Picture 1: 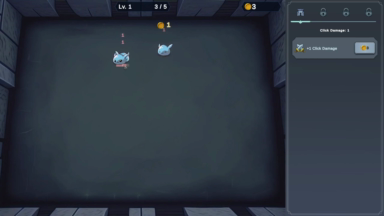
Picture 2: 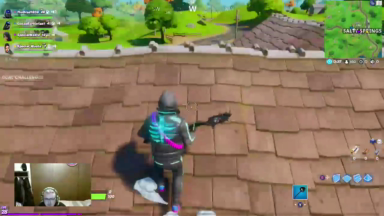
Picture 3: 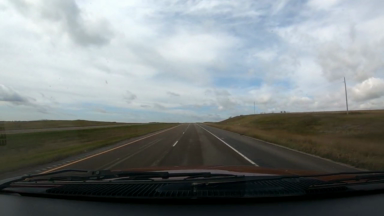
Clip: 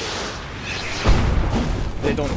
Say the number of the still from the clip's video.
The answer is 2